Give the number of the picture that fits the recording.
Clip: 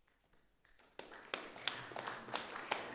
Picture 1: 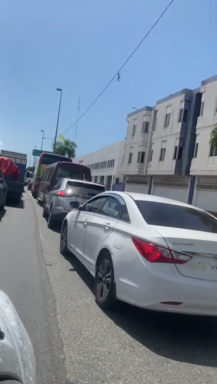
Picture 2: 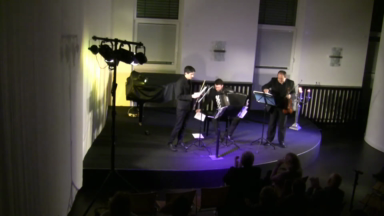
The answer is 2